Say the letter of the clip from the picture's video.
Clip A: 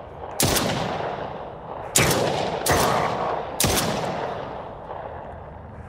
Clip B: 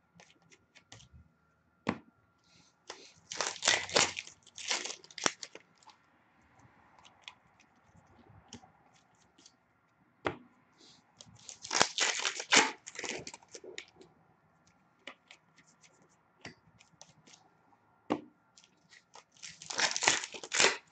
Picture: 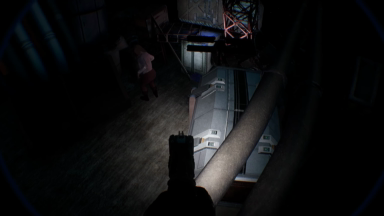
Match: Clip A